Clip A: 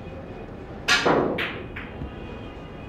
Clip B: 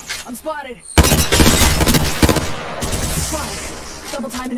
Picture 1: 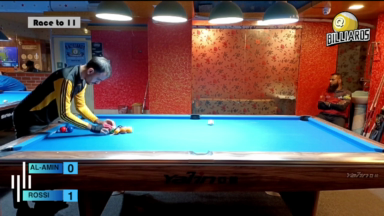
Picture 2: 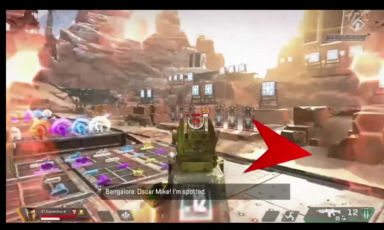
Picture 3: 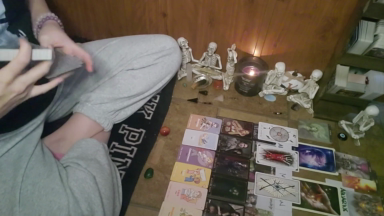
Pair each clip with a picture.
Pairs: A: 1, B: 2